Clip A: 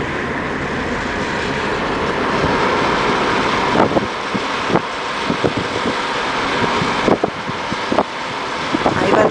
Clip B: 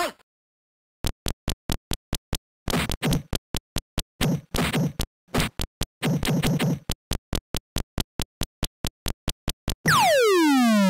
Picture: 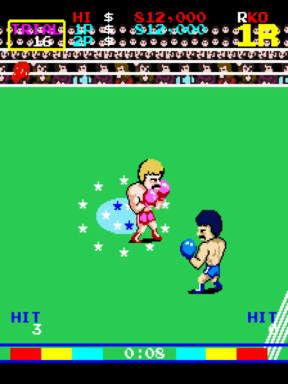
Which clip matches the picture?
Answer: B